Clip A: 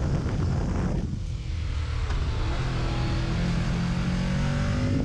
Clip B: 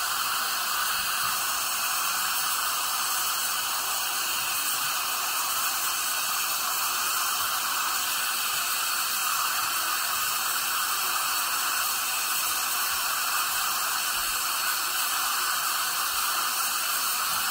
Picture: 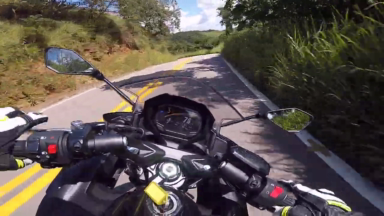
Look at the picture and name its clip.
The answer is A